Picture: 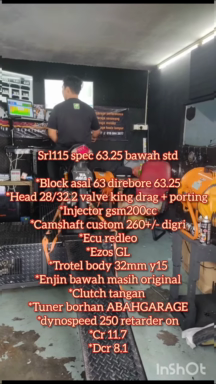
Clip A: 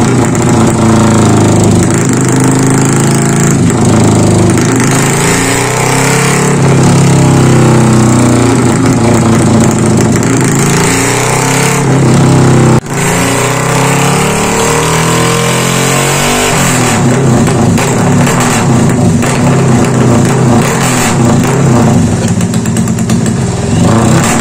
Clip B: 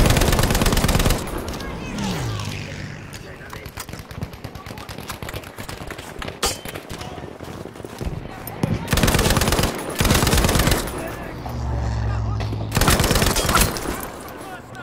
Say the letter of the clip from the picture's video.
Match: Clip A